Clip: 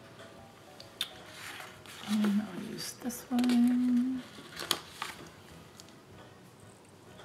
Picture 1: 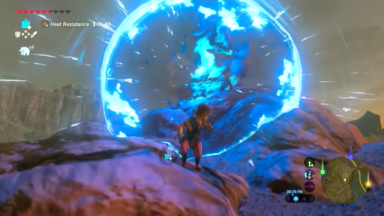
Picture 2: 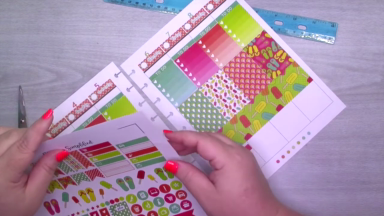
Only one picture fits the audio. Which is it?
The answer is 2